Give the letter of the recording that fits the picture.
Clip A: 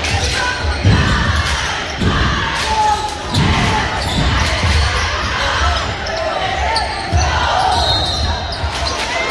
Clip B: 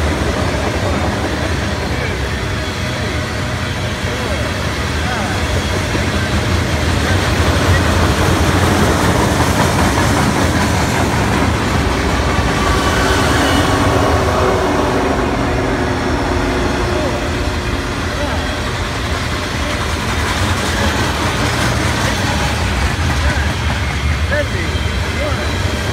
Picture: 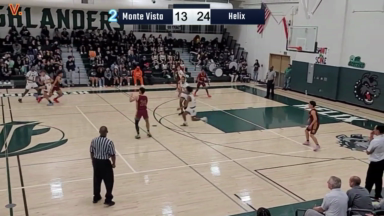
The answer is A